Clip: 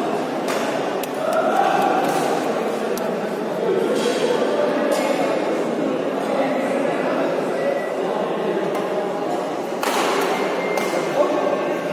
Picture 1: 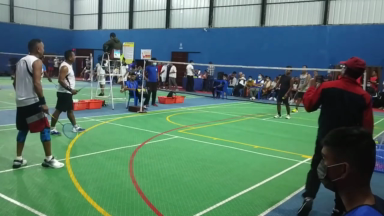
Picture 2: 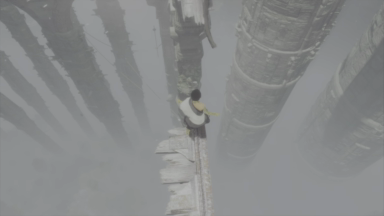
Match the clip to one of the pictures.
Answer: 1